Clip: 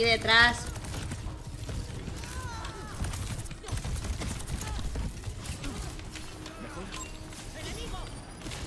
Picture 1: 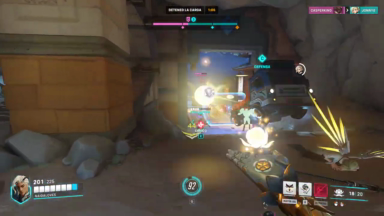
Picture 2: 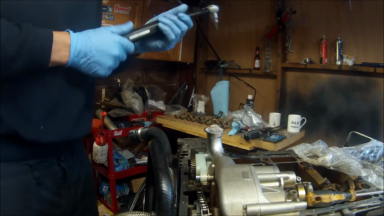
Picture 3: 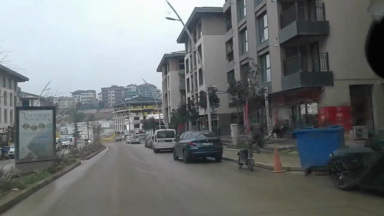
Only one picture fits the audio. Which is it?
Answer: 1